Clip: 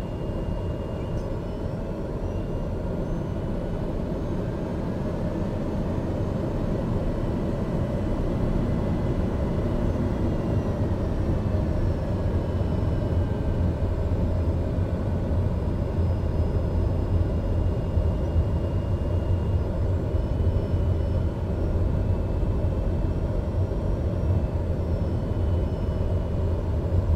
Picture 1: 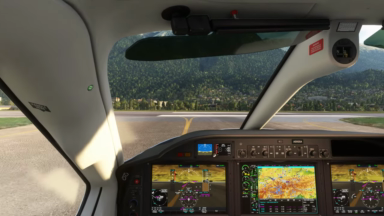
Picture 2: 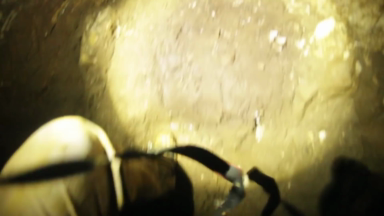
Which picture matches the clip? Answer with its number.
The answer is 1